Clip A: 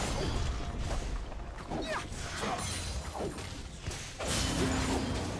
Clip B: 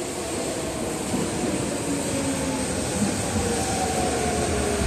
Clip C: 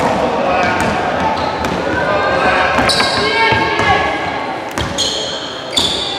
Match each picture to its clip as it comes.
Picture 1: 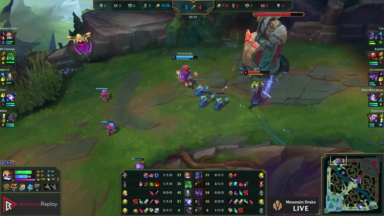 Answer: A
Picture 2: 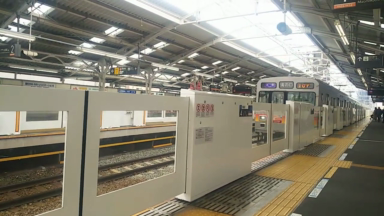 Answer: B